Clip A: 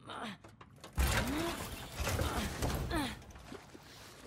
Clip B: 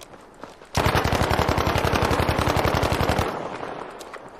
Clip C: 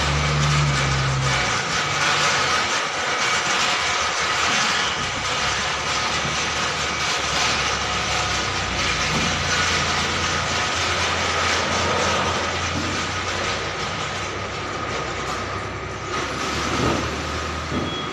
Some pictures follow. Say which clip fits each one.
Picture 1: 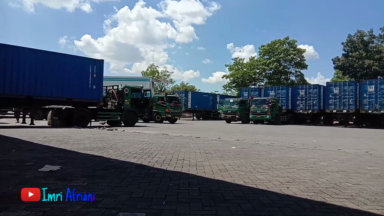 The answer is C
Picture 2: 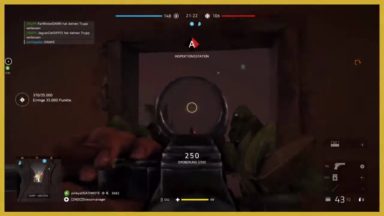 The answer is B